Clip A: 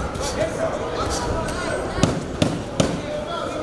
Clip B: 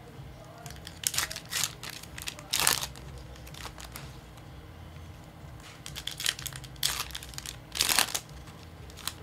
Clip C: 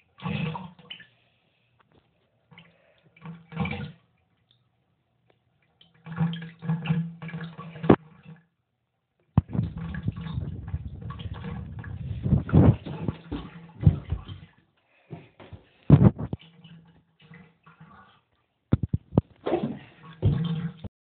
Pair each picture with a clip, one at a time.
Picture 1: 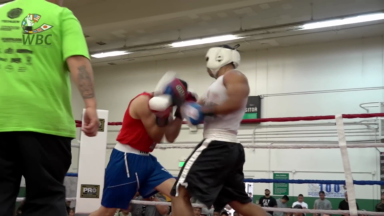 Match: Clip A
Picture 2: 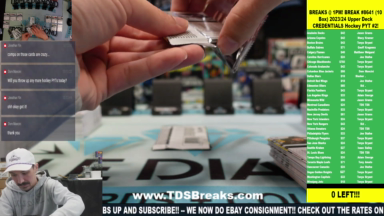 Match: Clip B